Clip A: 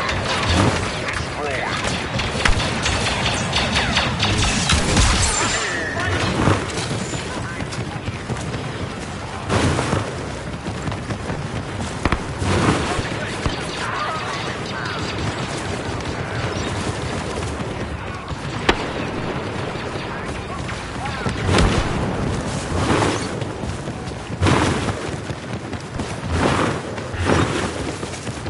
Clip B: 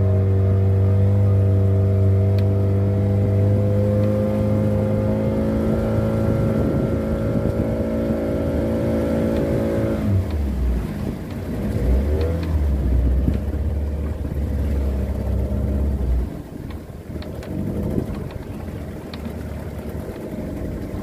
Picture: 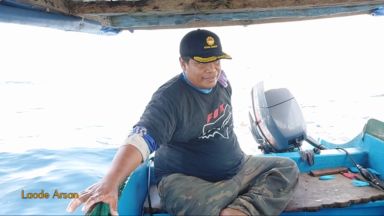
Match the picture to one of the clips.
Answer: B